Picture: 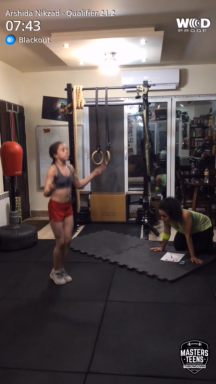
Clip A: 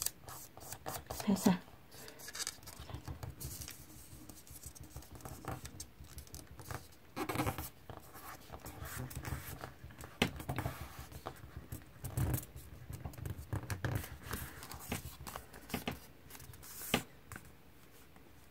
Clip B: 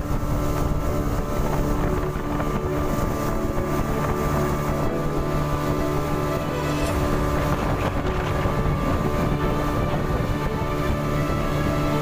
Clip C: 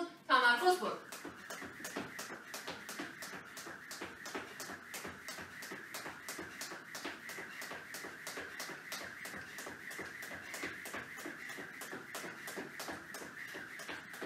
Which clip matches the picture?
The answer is C